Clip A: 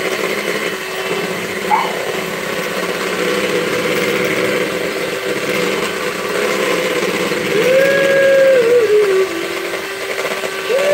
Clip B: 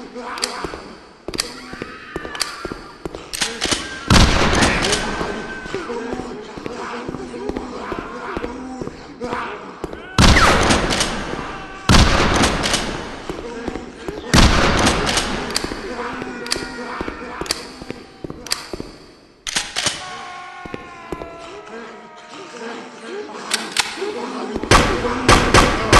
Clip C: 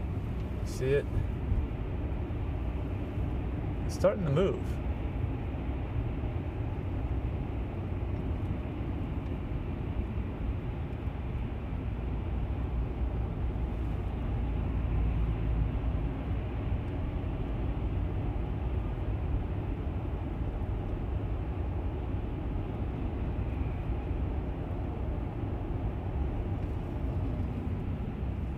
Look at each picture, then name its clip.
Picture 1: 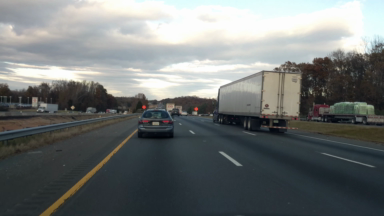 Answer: C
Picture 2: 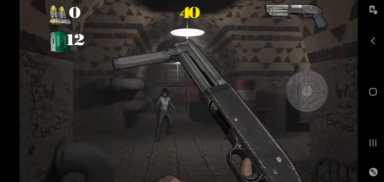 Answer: B